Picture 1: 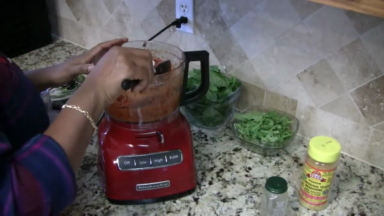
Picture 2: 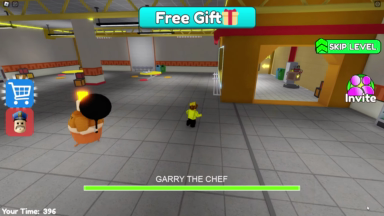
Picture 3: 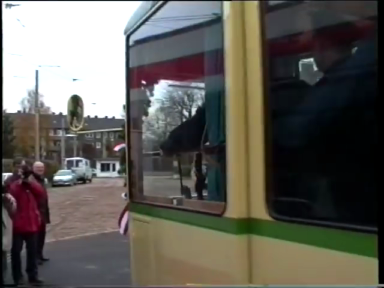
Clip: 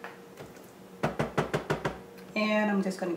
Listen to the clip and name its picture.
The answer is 1